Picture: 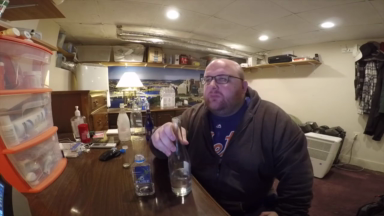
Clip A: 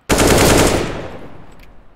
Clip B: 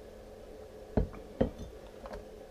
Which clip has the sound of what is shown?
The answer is B